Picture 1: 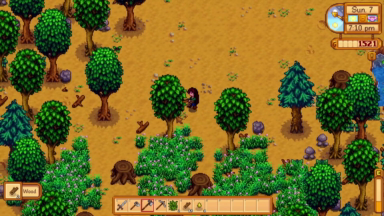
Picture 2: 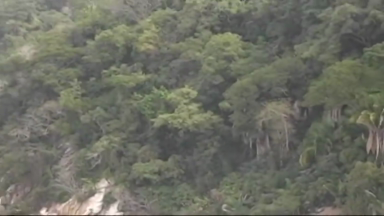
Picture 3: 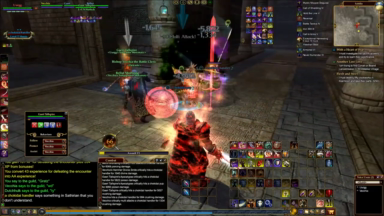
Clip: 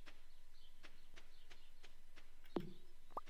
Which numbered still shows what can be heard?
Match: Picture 1